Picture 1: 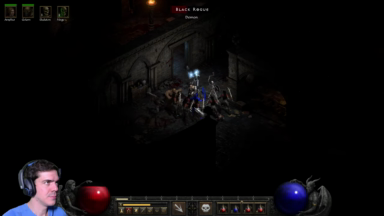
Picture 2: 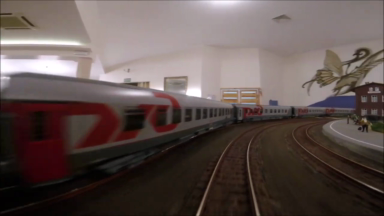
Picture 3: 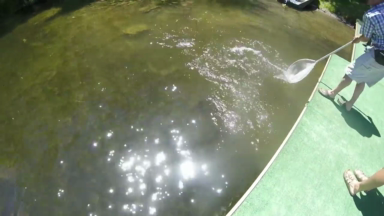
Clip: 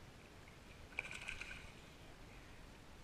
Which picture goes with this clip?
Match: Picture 3